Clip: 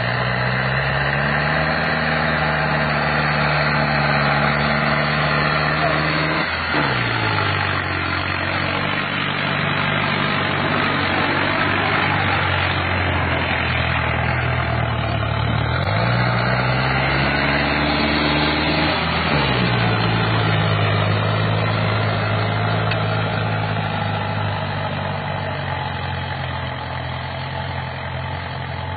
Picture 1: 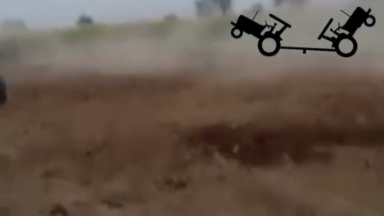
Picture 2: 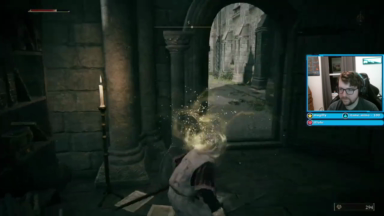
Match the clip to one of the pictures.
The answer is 1